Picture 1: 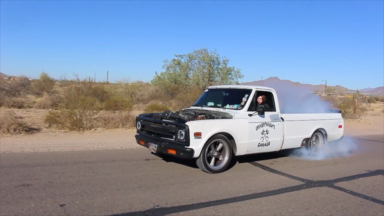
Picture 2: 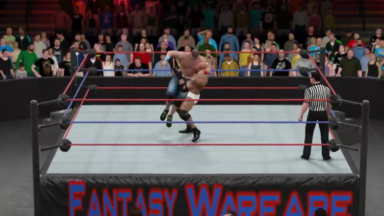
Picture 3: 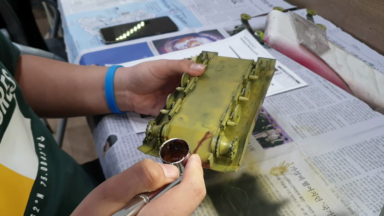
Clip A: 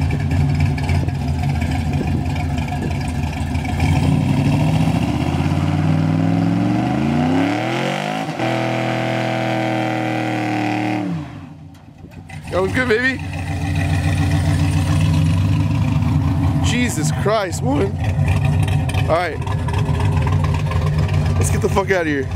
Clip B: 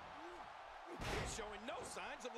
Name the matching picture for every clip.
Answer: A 1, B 2